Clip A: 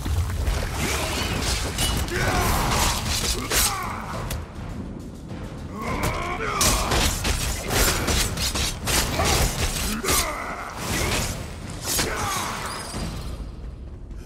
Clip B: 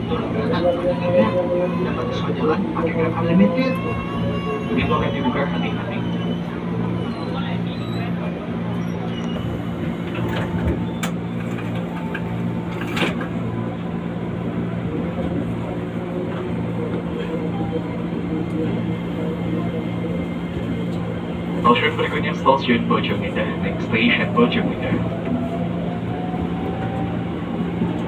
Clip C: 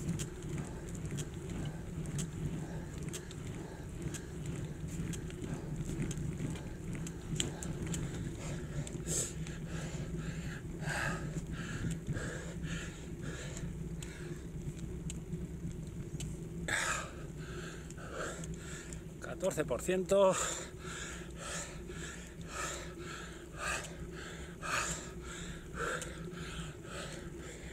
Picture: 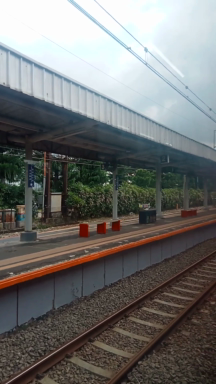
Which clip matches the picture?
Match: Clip B